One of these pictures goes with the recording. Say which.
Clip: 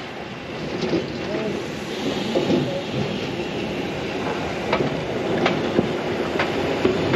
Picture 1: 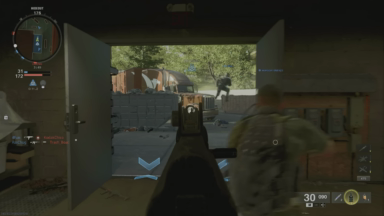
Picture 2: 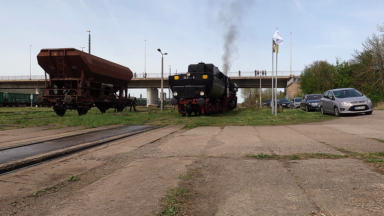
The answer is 2